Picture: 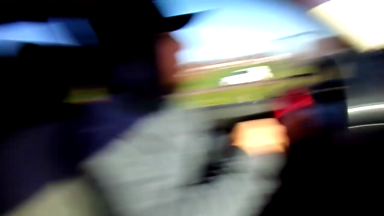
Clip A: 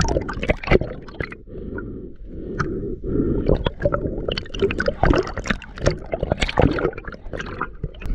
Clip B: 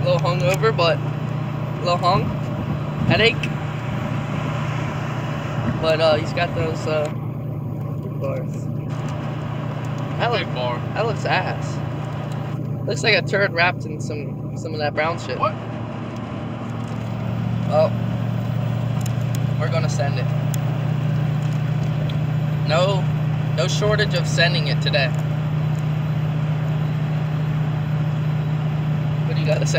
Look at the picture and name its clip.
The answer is B